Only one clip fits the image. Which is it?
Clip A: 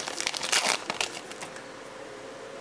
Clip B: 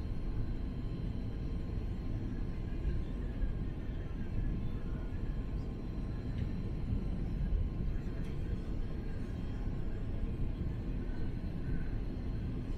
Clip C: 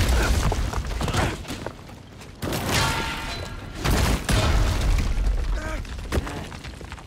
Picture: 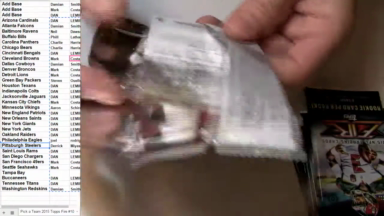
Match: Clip A